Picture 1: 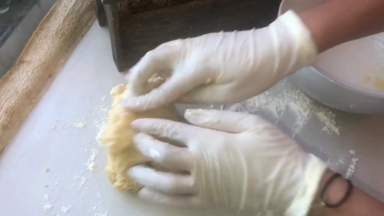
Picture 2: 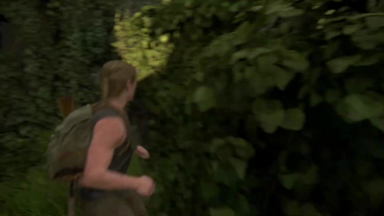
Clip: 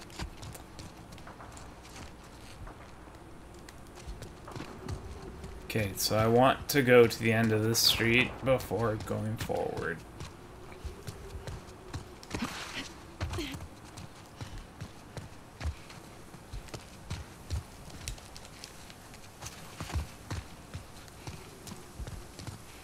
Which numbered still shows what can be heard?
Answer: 2